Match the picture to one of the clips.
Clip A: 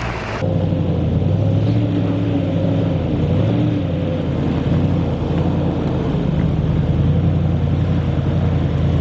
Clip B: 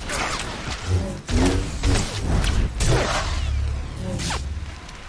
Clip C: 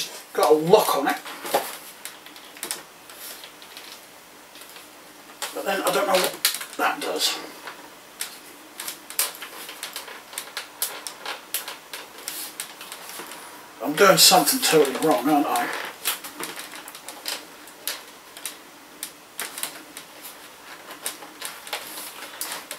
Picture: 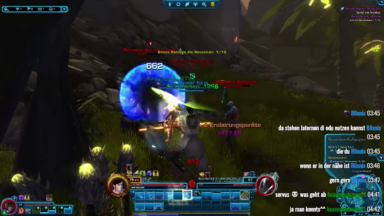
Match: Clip B